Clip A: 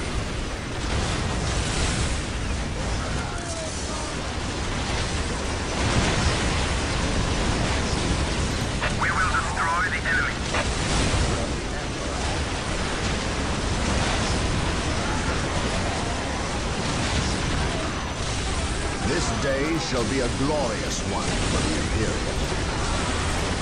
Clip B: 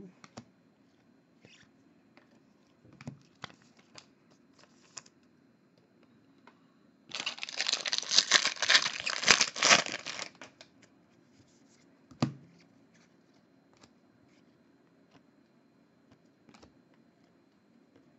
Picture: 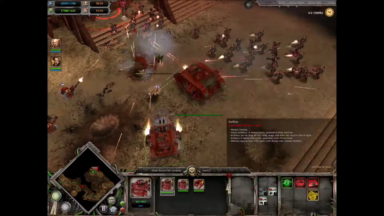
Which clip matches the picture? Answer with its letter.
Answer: A